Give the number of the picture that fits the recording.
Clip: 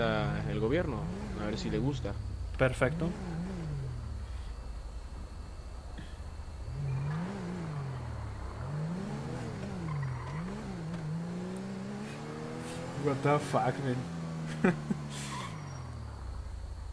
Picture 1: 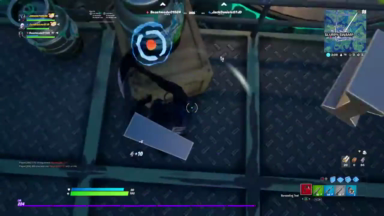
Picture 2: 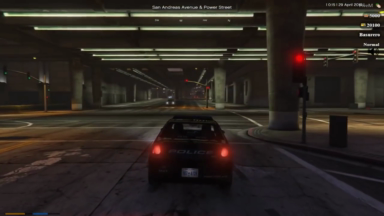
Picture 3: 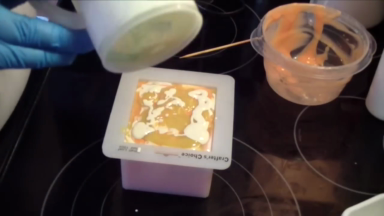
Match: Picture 2